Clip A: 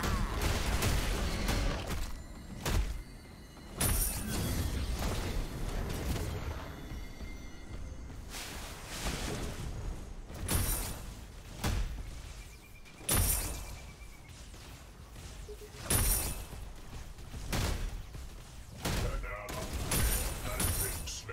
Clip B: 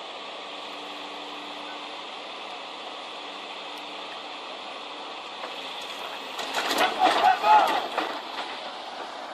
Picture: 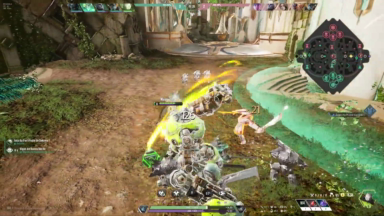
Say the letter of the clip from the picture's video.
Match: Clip A